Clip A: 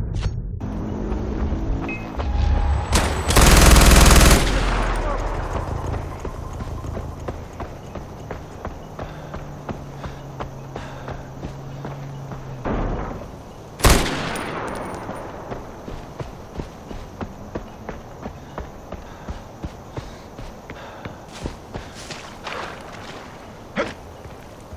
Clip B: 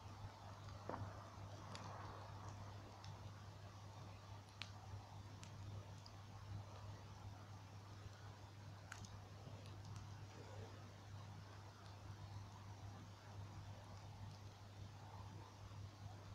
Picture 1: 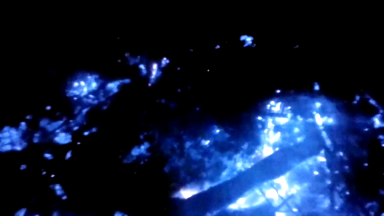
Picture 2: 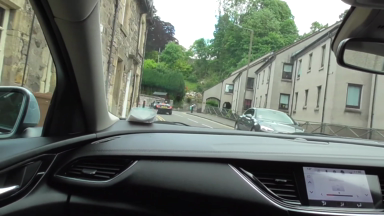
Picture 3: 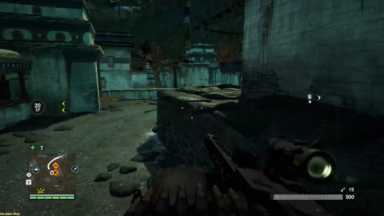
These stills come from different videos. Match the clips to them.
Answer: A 3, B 1